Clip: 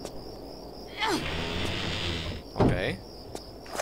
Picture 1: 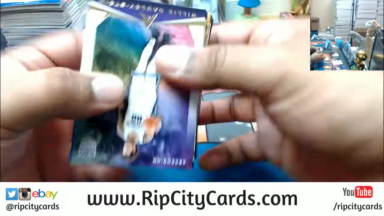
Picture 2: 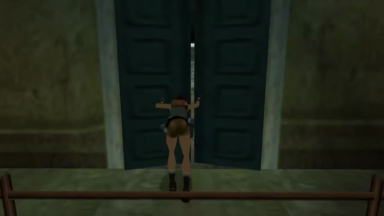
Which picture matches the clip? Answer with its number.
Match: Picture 2